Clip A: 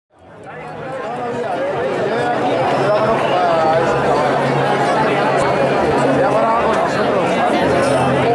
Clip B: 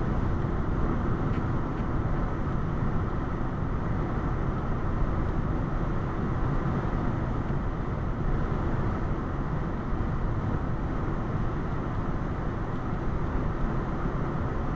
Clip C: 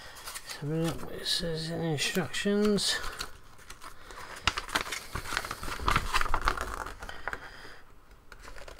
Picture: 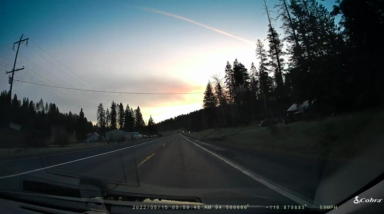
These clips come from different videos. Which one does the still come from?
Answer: B